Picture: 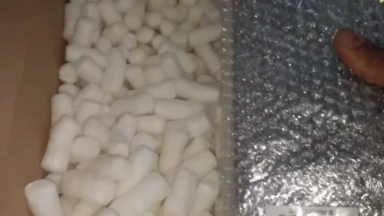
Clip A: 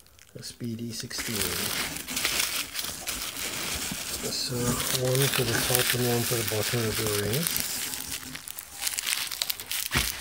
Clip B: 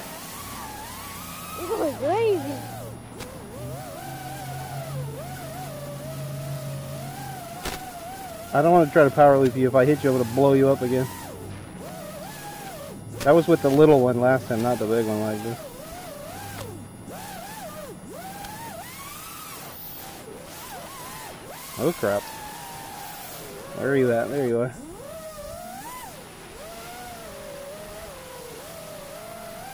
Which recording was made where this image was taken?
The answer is A